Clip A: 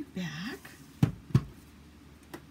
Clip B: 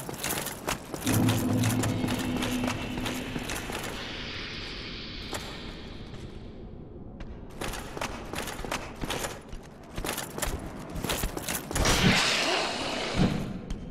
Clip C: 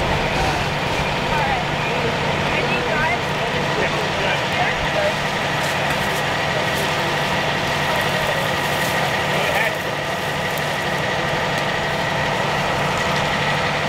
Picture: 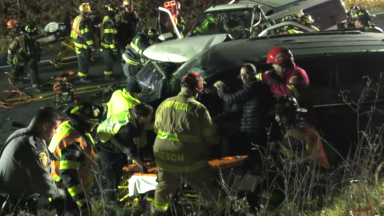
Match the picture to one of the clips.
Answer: C